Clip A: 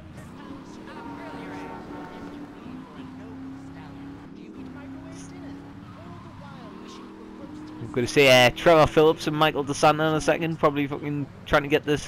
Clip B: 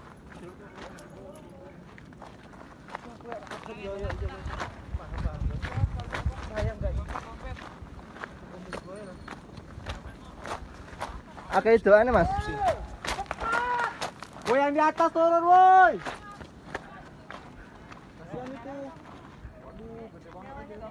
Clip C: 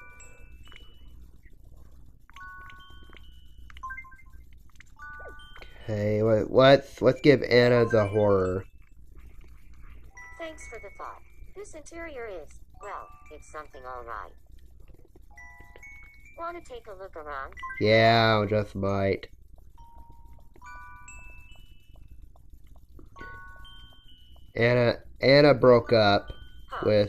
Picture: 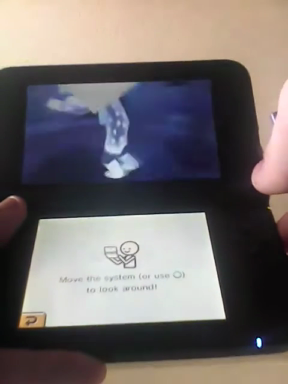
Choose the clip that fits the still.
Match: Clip C